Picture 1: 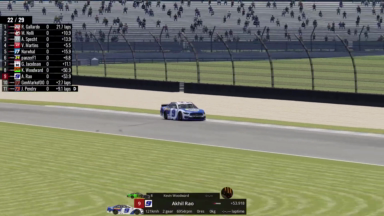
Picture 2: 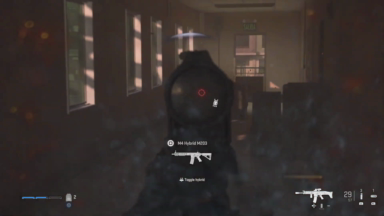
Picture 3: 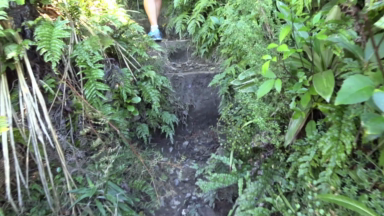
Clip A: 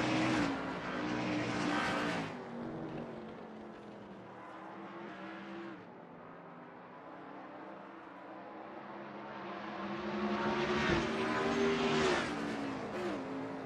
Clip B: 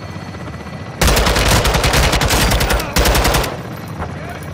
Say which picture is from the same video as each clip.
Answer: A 1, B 2